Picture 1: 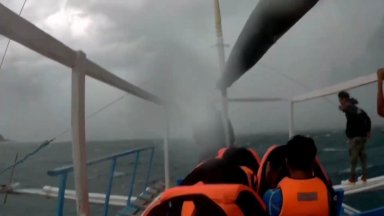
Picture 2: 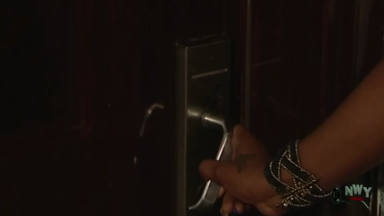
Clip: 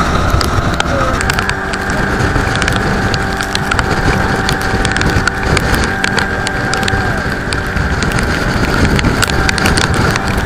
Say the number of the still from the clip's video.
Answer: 1